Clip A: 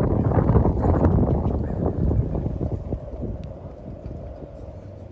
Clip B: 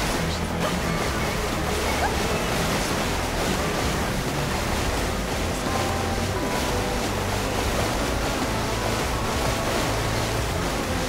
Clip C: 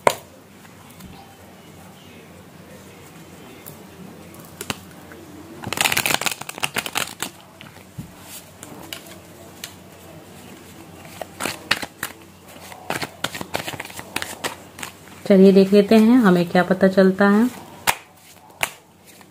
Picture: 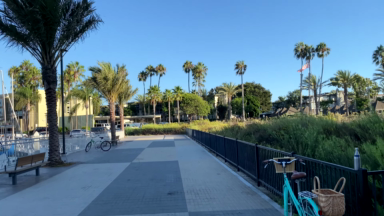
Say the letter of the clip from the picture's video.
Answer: A